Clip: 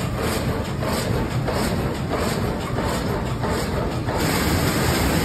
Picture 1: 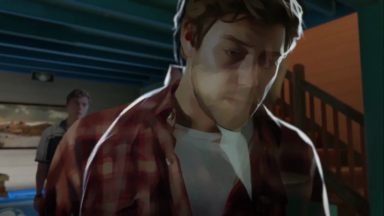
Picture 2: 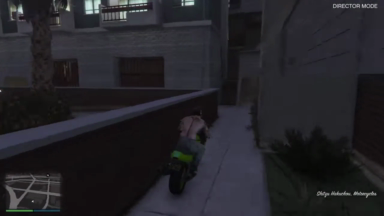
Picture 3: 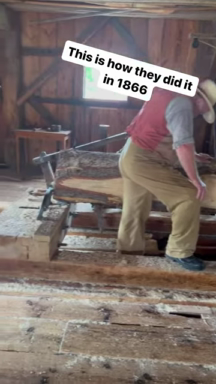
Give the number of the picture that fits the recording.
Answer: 3